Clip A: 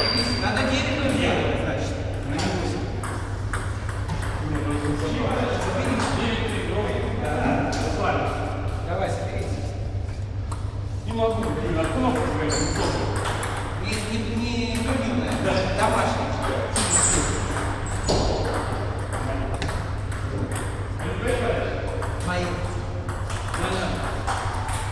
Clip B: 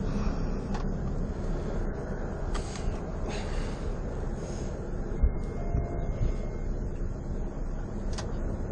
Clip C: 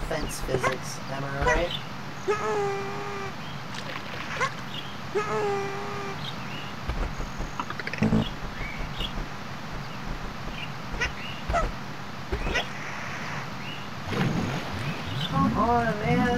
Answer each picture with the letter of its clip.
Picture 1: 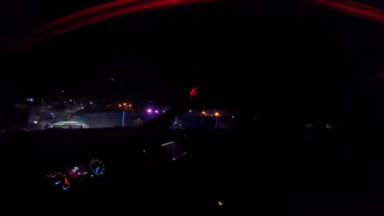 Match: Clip B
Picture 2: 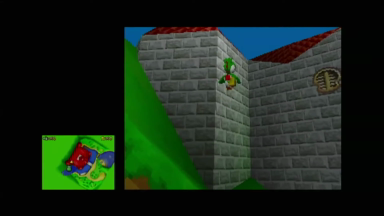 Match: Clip C